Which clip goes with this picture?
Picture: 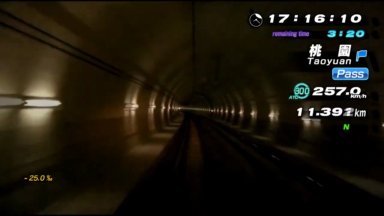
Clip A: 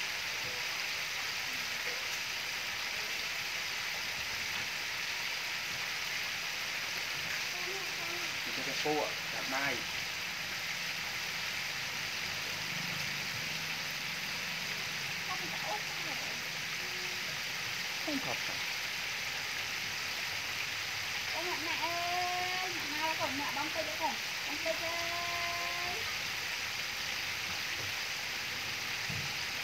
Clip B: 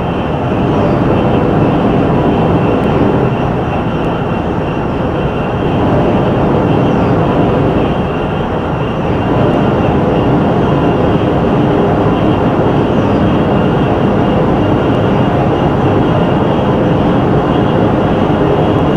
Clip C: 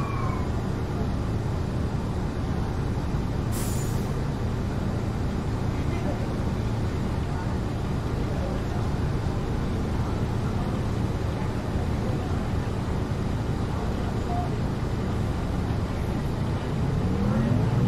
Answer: B